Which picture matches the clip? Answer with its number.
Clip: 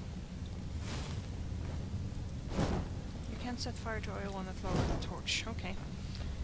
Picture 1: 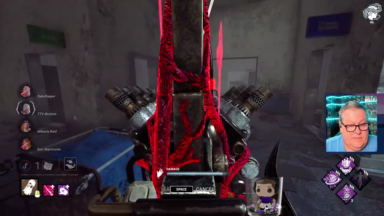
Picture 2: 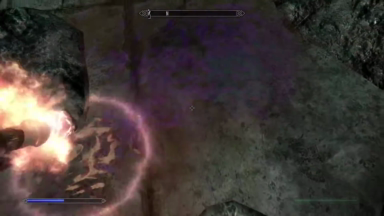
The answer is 2